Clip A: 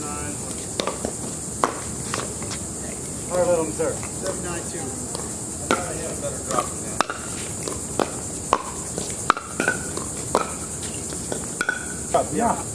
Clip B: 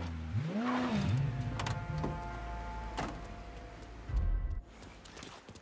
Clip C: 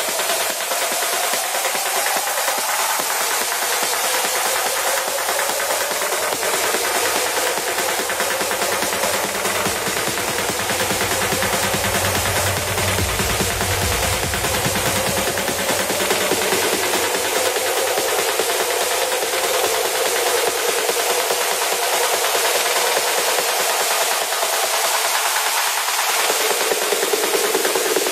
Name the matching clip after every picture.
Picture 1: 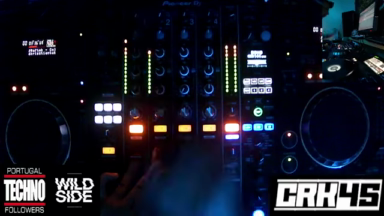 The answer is C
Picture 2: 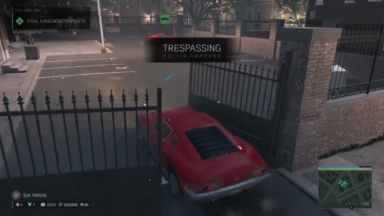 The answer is B